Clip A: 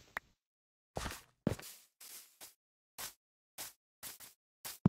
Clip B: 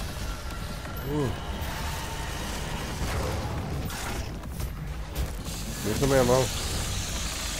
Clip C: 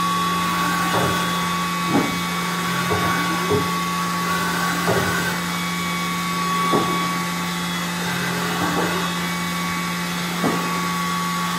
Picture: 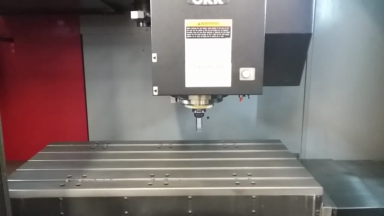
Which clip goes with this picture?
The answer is C